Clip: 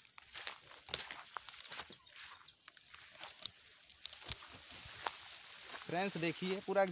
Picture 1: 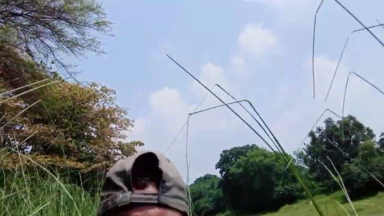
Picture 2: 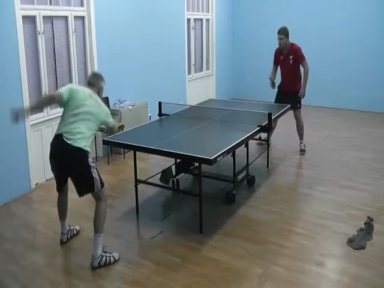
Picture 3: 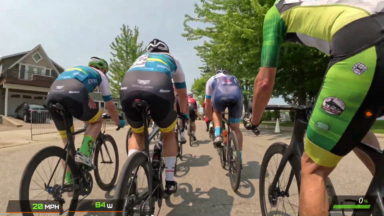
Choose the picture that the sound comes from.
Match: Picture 1